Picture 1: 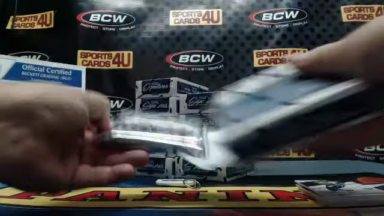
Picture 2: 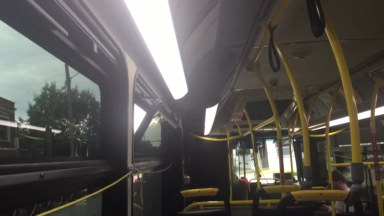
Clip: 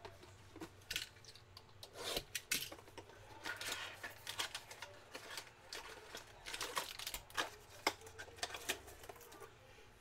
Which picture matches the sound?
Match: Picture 1